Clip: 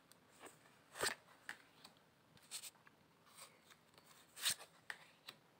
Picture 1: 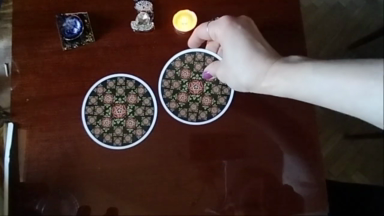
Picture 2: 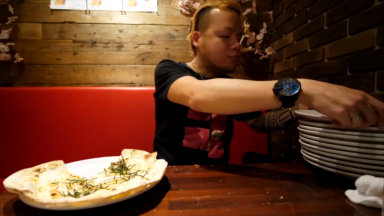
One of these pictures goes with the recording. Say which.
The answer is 1